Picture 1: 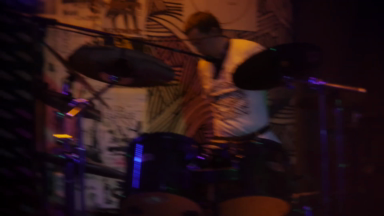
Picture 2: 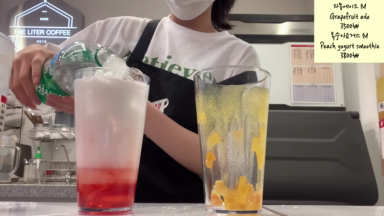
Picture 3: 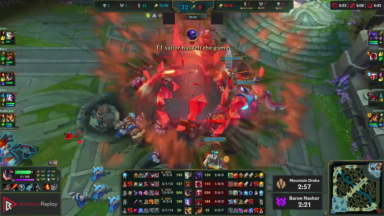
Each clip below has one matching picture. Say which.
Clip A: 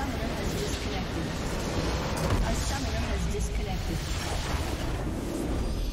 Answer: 3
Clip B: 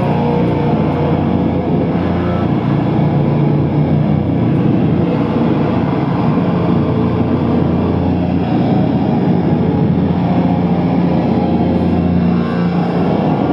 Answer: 1